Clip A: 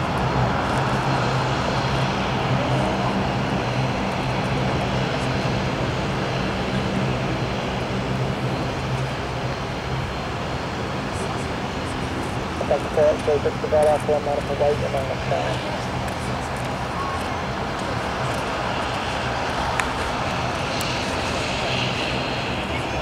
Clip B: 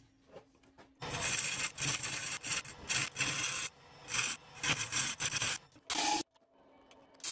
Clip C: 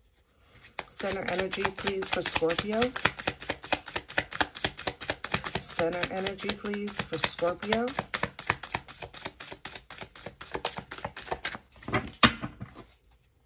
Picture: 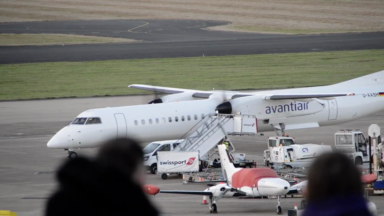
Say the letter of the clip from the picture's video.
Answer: A